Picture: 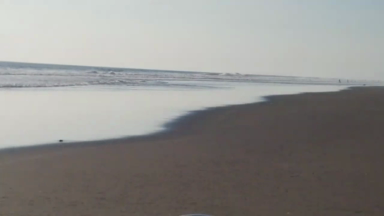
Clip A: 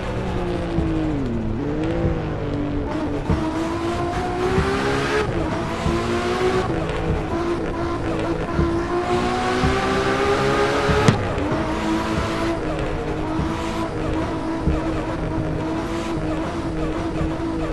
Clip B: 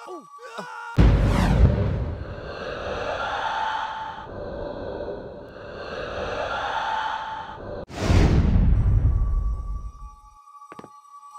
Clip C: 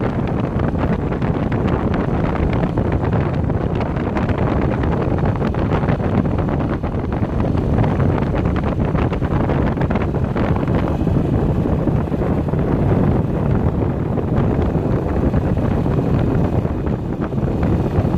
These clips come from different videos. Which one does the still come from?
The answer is C